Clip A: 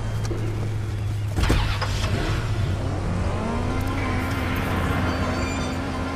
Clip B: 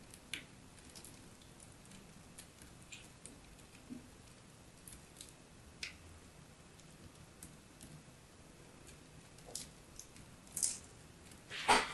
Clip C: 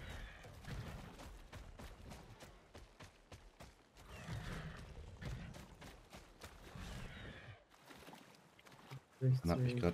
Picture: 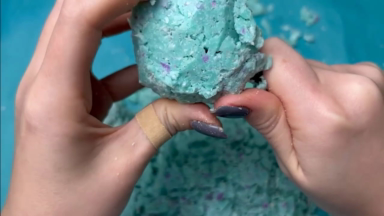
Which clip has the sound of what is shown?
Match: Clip B